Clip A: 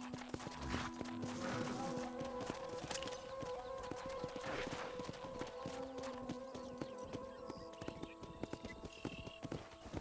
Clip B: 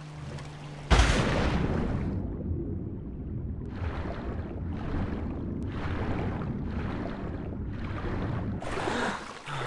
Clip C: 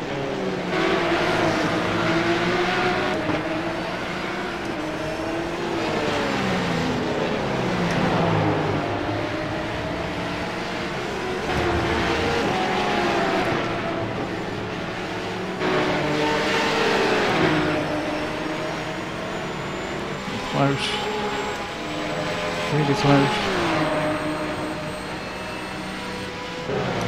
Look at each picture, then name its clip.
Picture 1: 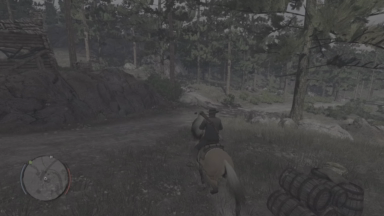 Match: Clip A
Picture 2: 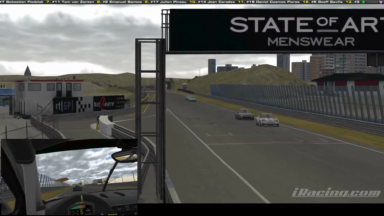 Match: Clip C